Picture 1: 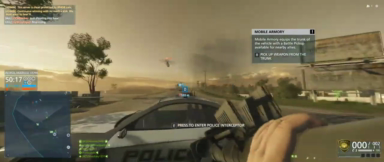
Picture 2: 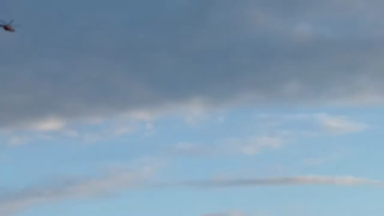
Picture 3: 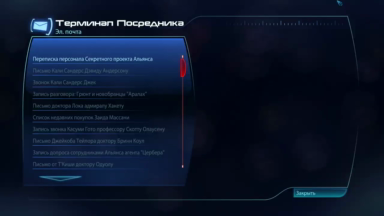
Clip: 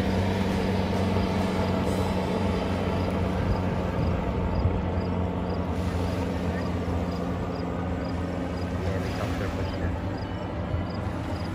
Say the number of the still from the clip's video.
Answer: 2